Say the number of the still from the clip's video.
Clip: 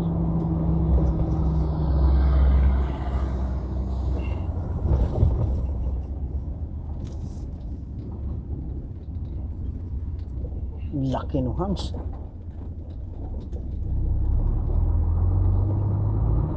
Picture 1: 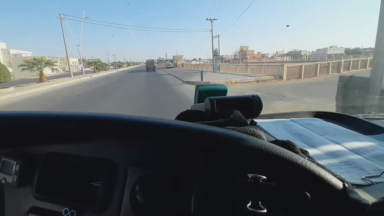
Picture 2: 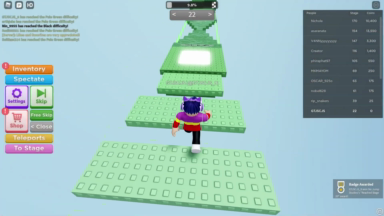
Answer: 1